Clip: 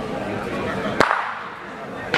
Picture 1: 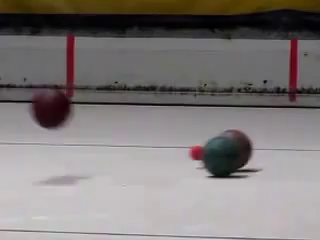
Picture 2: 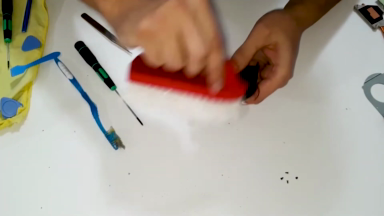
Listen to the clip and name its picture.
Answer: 1